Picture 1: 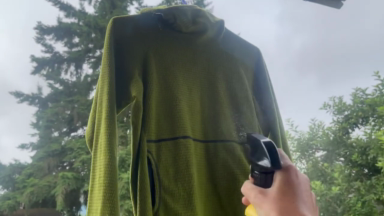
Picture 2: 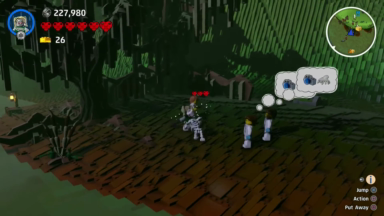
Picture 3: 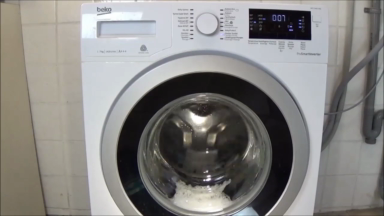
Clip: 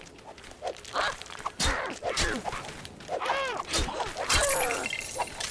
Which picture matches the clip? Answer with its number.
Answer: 2